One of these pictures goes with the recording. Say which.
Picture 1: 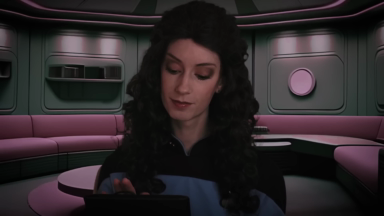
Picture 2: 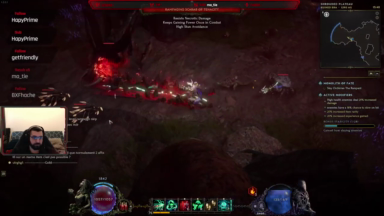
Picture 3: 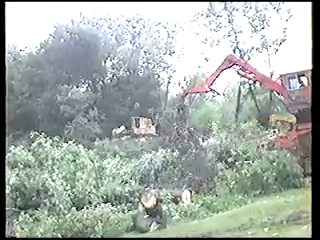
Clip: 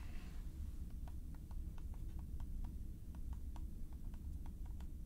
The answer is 1